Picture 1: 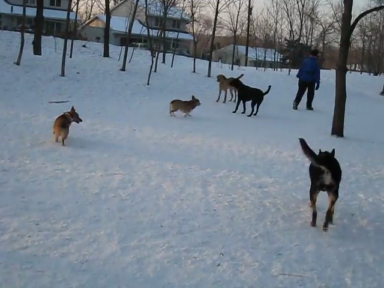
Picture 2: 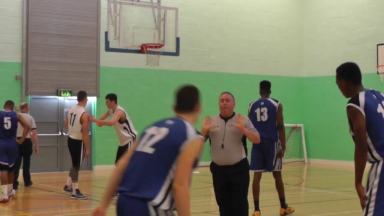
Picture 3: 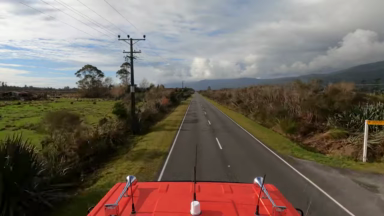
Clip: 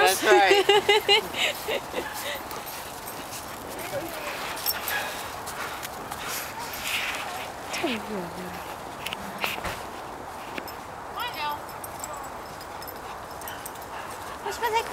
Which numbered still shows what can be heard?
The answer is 1